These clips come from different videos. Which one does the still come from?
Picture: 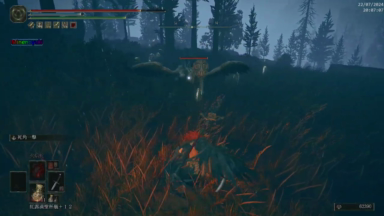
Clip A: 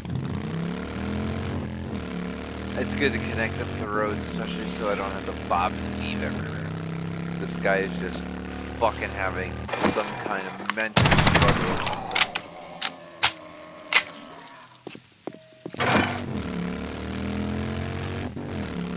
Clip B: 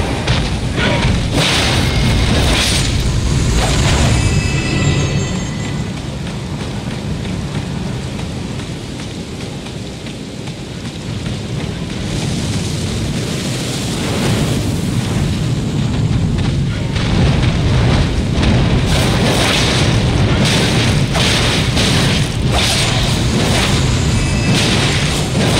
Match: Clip B